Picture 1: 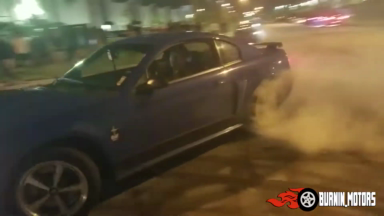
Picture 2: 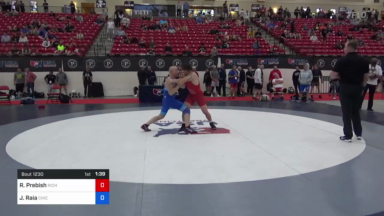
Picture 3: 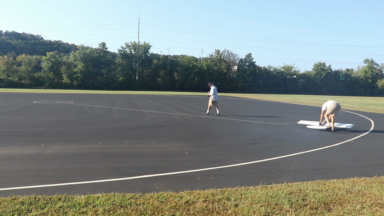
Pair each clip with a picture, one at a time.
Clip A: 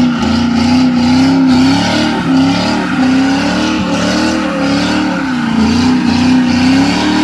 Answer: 1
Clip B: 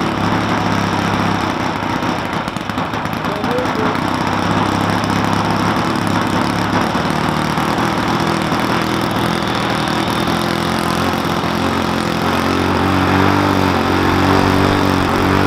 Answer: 3